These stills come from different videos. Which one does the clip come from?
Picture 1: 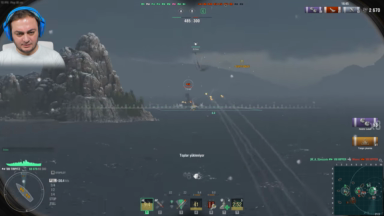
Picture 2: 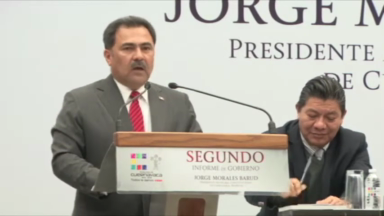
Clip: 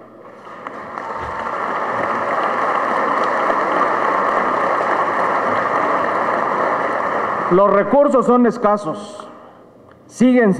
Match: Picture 2